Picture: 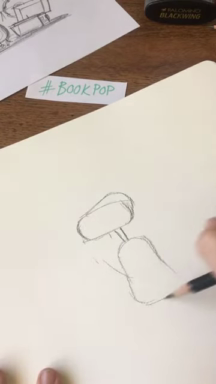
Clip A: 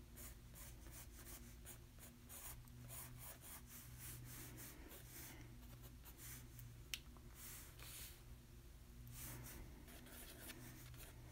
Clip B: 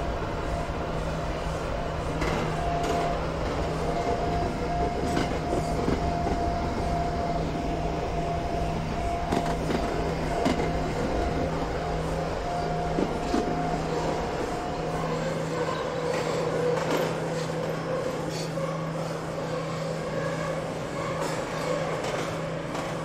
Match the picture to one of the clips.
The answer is A